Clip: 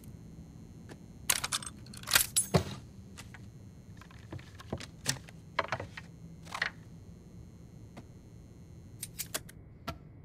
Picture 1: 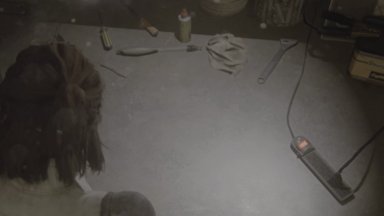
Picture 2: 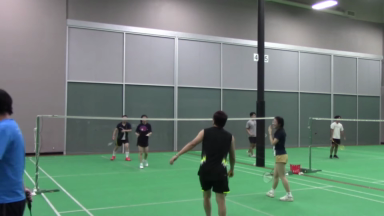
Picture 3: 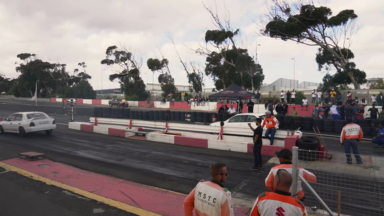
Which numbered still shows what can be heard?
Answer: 1